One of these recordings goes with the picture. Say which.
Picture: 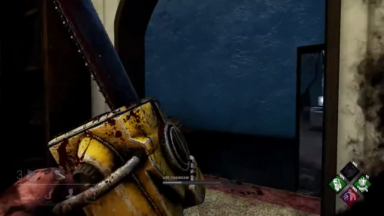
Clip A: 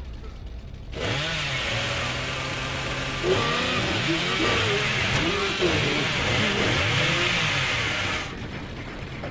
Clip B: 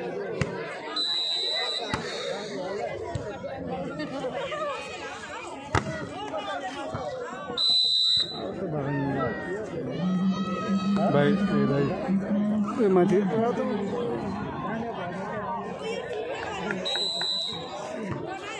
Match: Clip A